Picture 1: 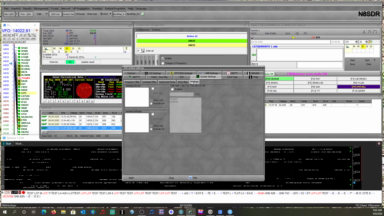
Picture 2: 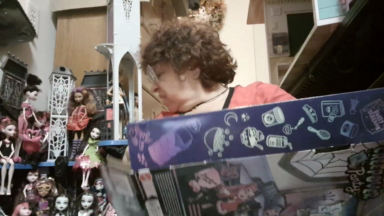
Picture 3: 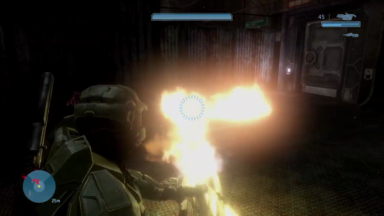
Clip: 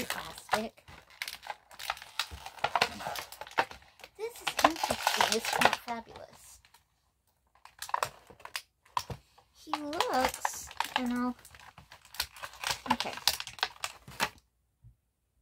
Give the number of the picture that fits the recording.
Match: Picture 2